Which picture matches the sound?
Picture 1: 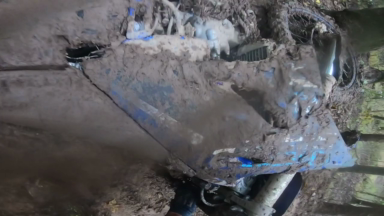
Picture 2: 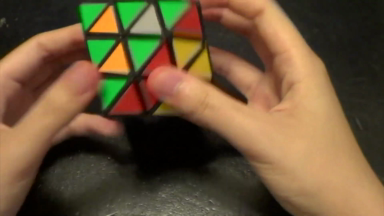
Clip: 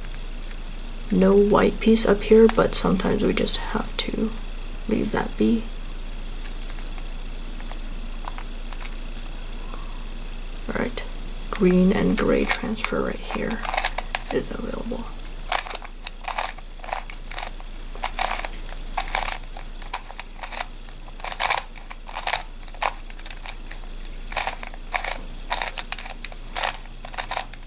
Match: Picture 2